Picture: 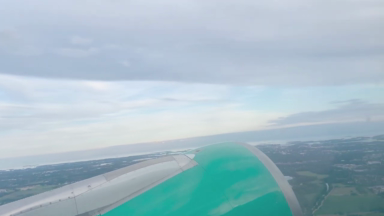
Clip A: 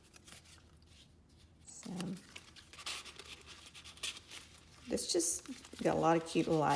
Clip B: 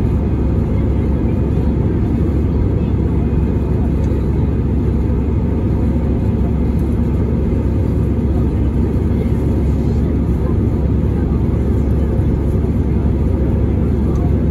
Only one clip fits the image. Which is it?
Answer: B